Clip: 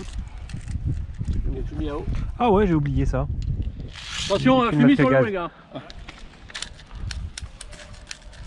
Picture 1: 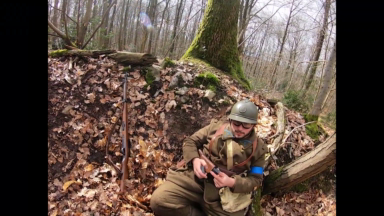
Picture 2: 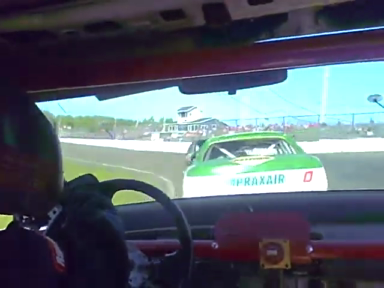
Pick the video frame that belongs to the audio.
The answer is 1